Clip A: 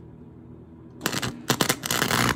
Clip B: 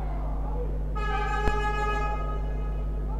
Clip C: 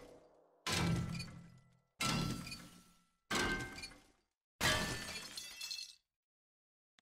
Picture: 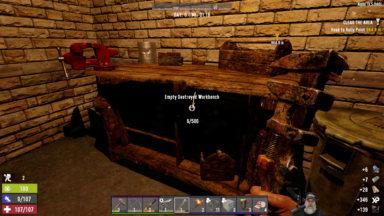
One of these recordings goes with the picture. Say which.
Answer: C